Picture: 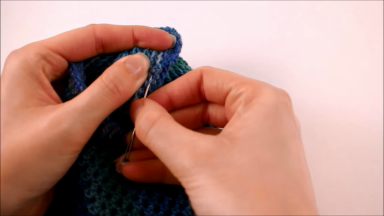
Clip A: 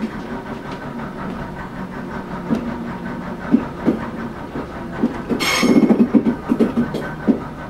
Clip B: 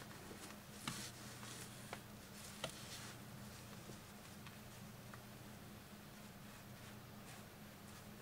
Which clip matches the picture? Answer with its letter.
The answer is B